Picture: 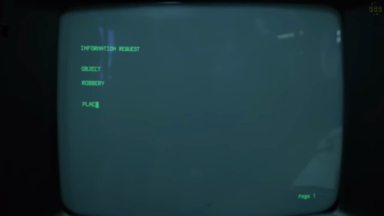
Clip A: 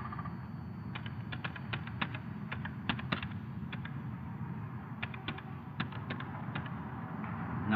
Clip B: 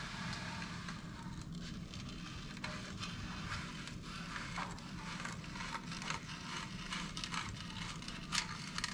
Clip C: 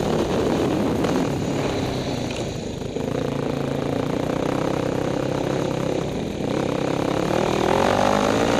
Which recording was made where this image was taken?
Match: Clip A